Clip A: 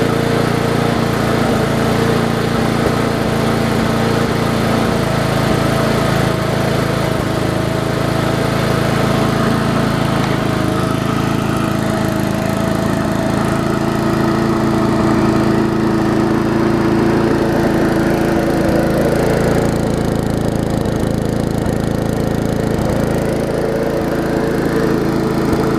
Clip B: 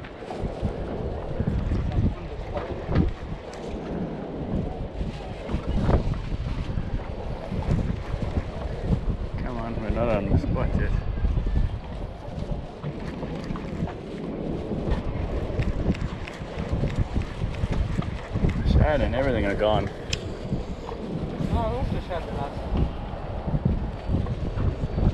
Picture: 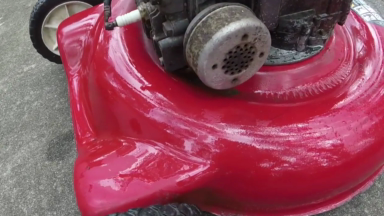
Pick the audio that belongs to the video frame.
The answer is A